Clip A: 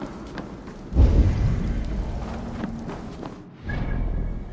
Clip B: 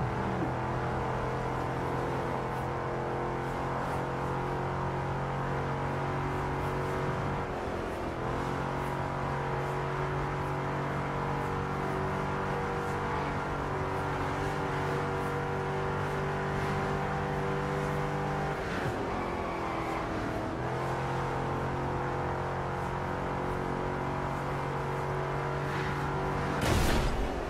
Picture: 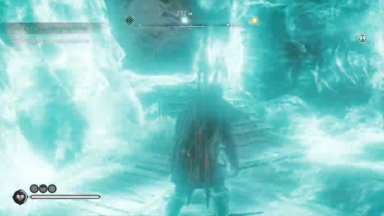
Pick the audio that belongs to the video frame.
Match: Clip A